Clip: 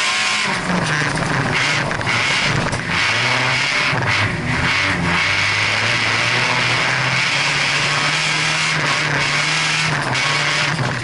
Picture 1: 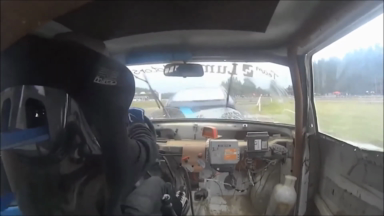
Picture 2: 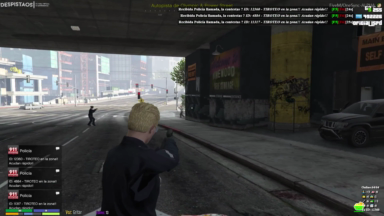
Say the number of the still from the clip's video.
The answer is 1